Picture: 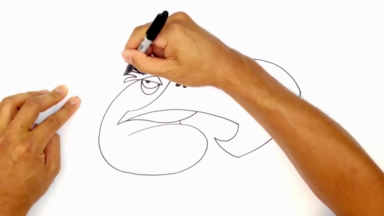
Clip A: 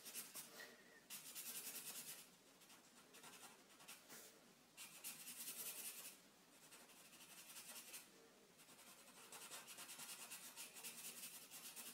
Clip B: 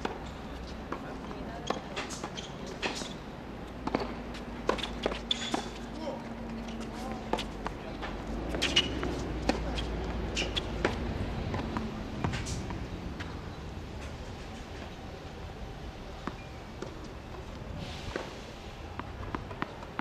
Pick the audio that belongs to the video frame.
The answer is A